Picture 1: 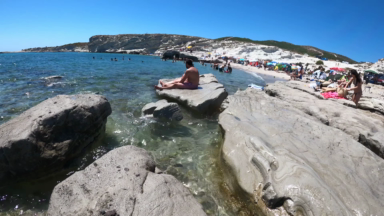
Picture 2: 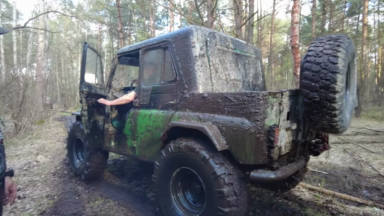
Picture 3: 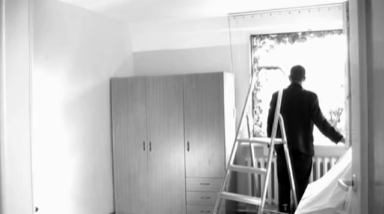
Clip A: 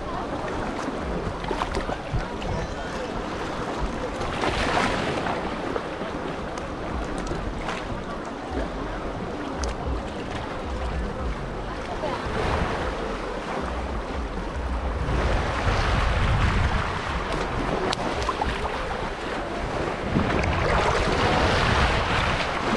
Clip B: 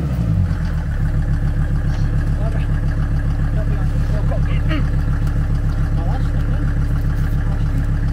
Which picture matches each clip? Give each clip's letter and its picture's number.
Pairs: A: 1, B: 2